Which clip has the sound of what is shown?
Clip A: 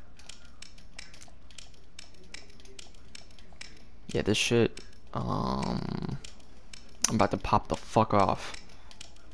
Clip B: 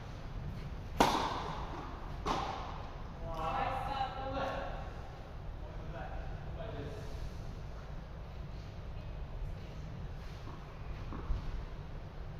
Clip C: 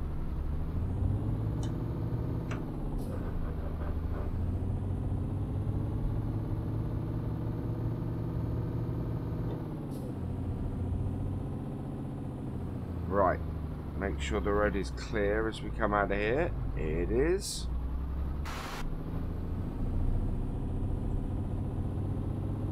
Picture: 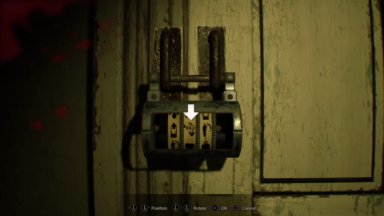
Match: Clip A